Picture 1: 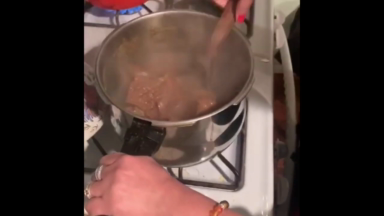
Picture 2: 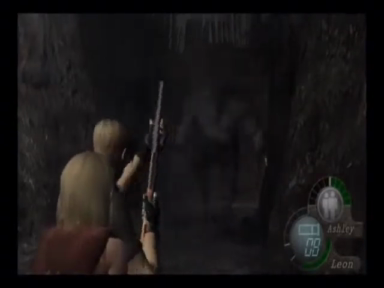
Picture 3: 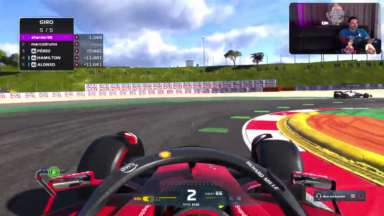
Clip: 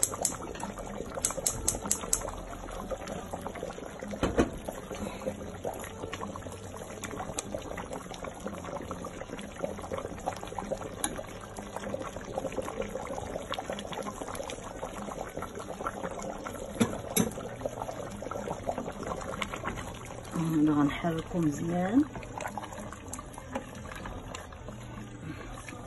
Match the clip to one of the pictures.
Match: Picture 1